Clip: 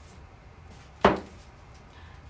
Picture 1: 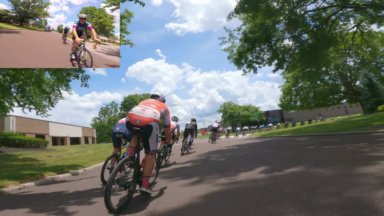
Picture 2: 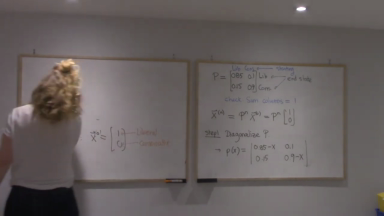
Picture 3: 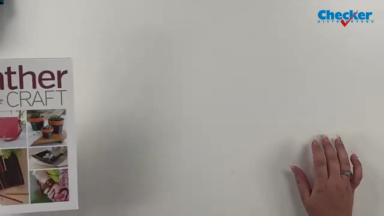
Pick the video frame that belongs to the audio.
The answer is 3